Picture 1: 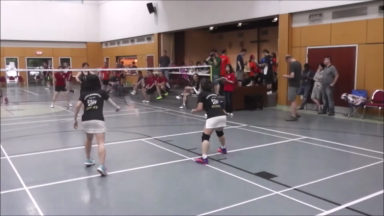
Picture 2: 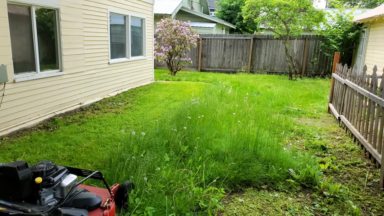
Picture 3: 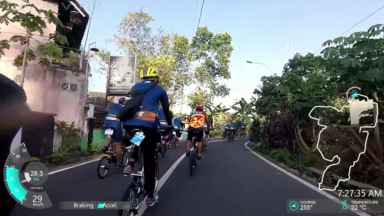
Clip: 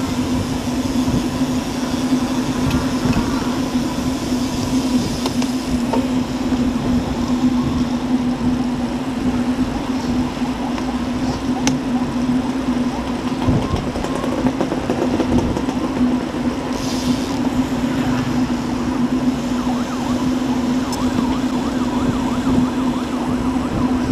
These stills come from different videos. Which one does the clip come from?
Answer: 3